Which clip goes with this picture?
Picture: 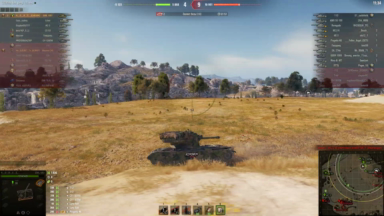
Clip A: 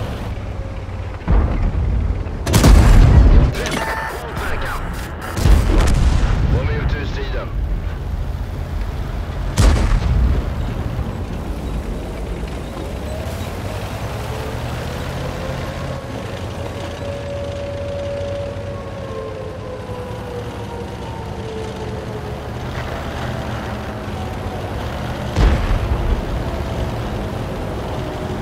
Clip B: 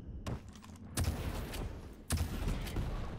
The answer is A